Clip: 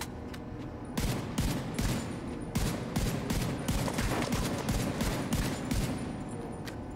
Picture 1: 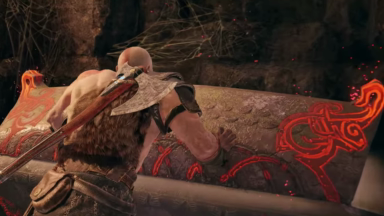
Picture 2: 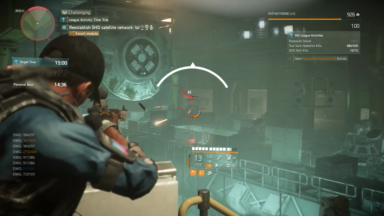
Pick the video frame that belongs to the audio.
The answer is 2